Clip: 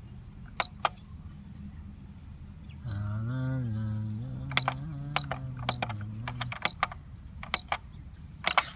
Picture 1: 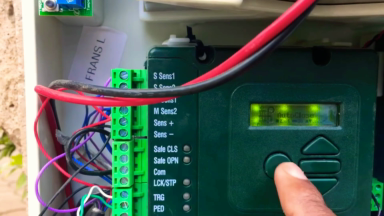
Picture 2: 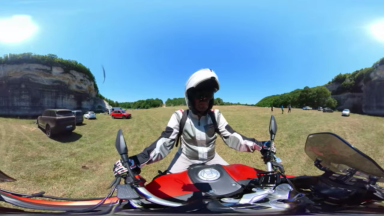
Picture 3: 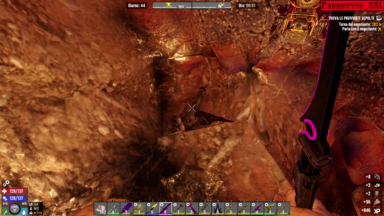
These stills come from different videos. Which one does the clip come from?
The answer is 1